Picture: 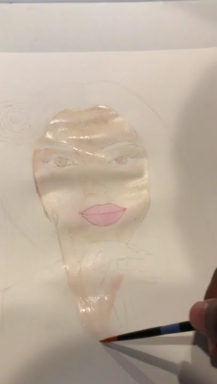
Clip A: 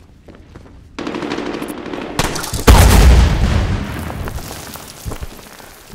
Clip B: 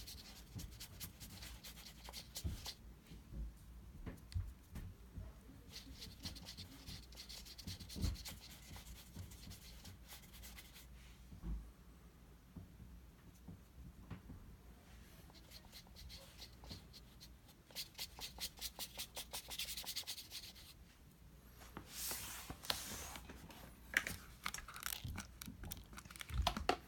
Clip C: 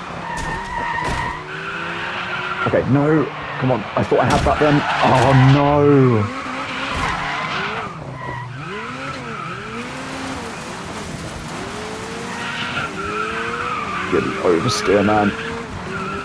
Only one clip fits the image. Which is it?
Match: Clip B